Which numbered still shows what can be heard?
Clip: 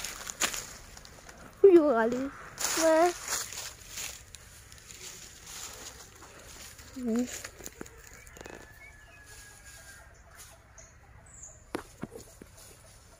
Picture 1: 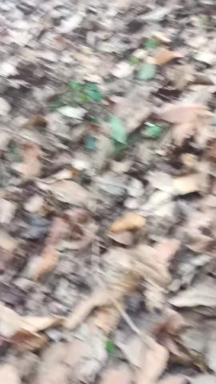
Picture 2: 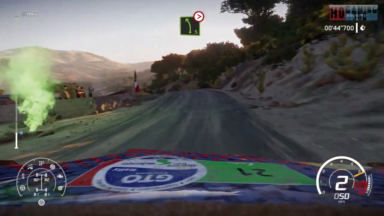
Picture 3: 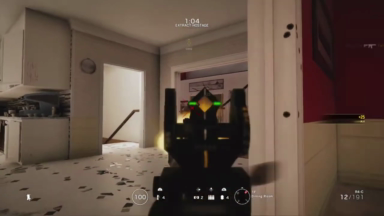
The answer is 1